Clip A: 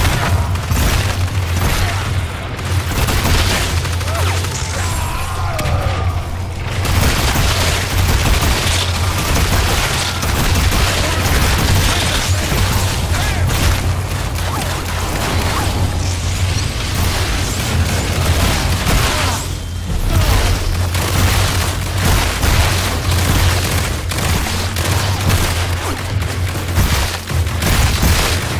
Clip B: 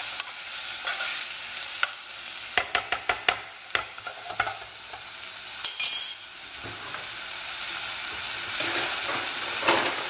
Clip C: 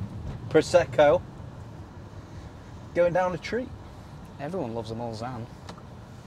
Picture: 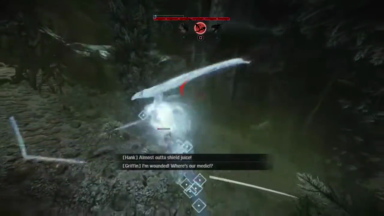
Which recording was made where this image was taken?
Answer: A